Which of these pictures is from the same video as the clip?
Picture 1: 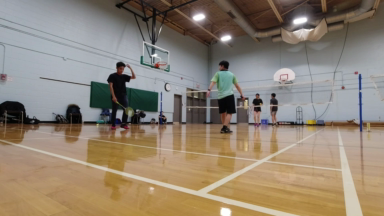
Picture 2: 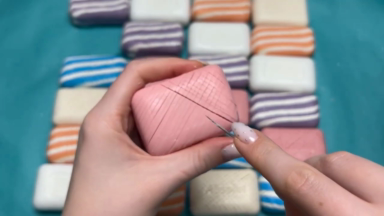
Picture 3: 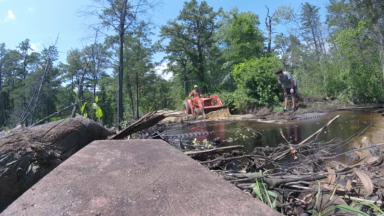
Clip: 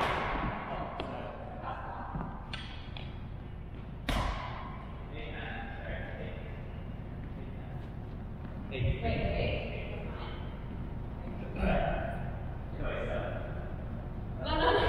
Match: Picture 1